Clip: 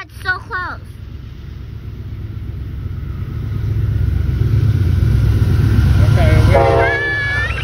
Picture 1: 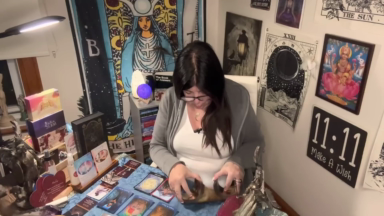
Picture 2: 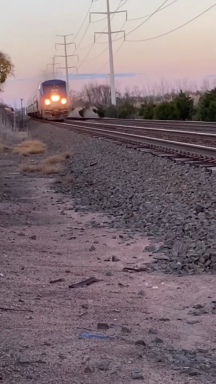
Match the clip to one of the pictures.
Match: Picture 2